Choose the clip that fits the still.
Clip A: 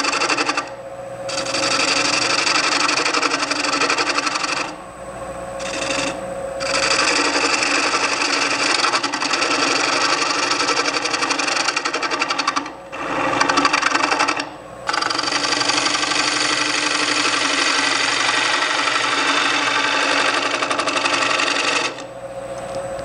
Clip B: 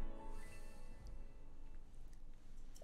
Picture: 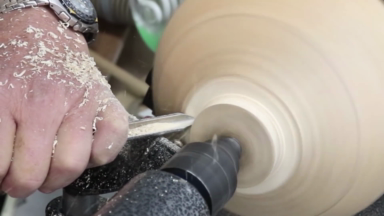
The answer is A